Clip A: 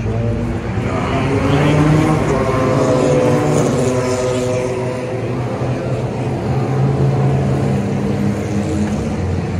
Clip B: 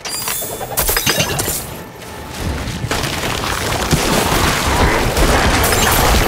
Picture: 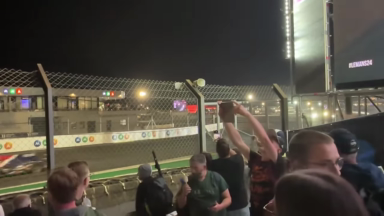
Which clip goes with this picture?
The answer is A